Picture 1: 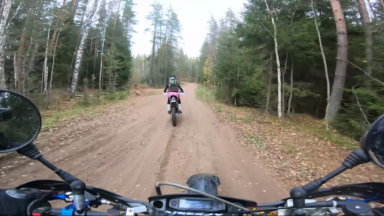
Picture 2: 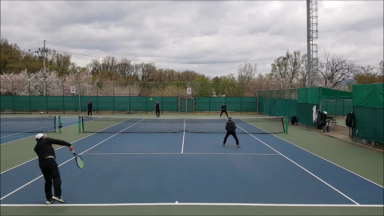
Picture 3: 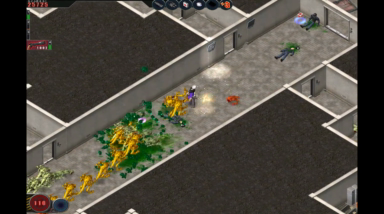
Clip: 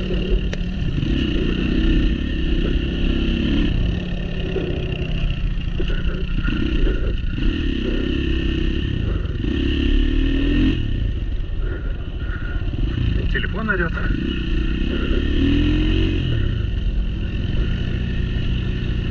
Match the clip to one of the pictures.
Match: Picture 1